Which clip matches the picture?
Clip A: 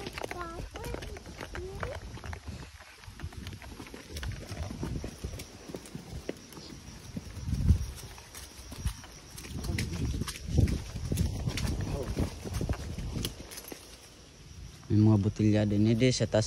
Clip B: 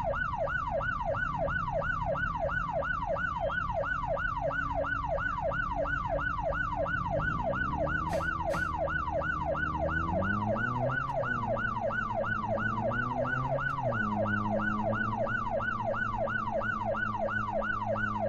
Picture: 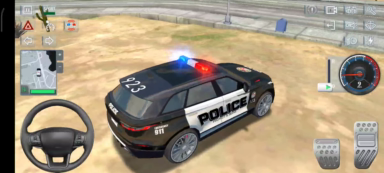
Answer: B